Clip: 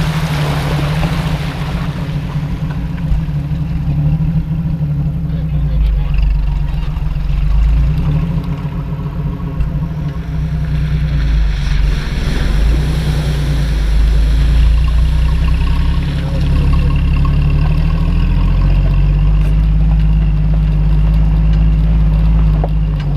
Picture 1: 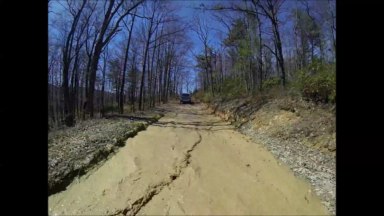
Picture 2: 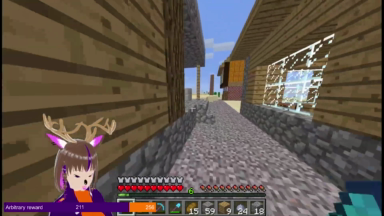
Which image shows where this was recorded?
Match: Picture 1